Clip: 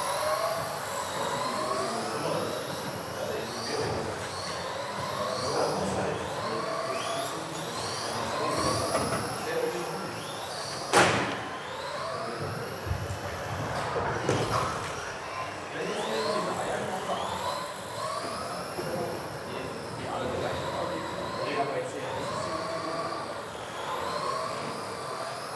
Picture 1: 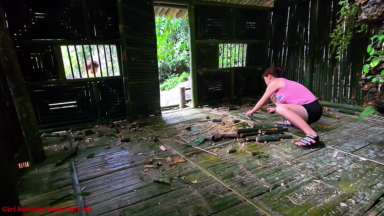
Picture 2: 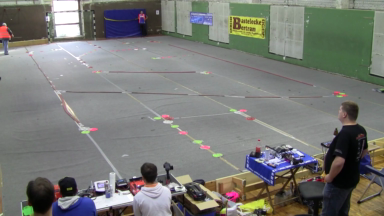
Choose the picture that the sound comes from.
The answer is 2